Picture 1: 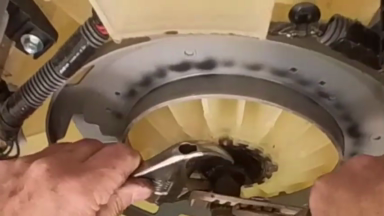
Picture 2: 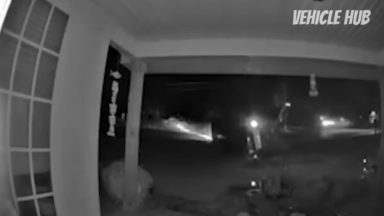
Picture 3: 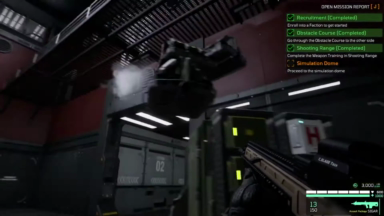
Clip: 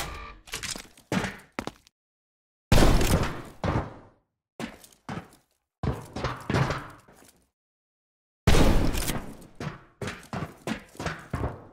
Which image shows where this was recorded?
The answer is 3